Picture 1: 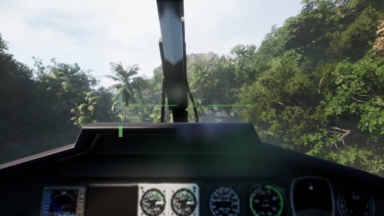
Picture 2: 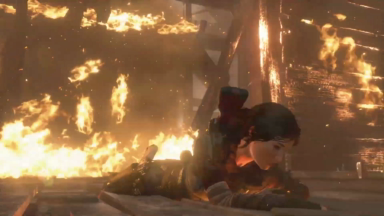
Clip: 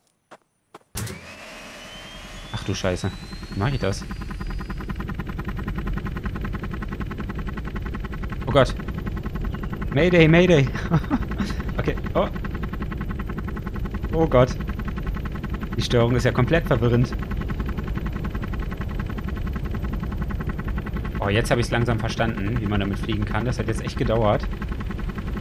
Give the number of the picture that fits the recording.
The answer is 1